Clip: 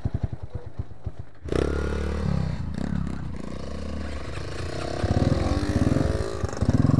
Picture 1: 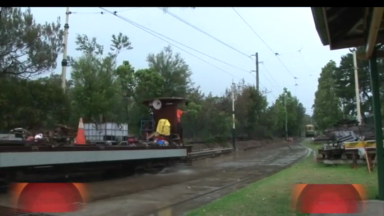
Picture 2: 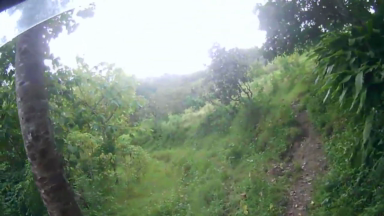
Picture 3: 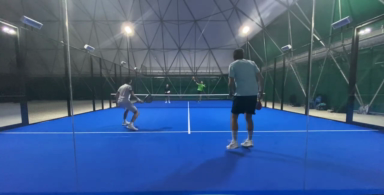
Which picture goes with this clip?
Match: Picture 2